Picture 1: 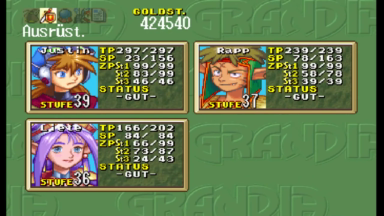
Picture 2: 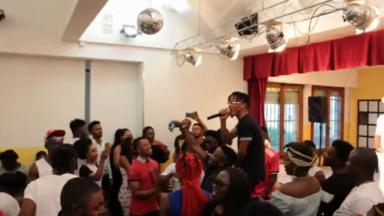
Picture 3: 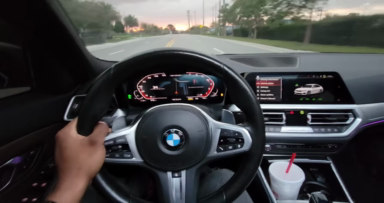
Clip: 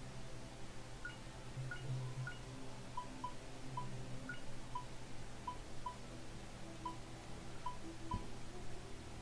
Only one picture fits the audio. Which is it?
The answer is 1